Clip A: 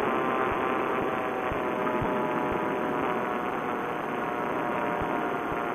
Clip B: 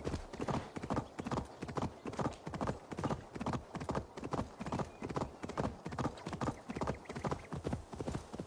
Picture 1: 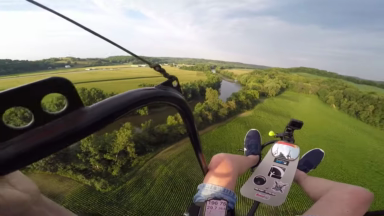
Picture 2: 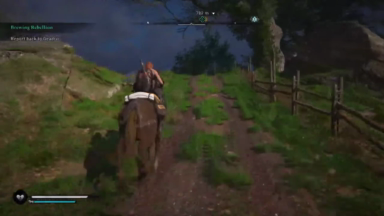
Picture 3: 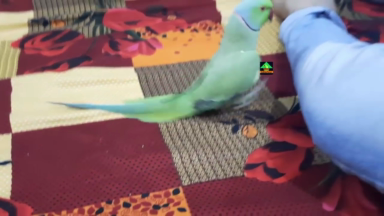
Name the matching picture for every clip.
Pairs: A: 1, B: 2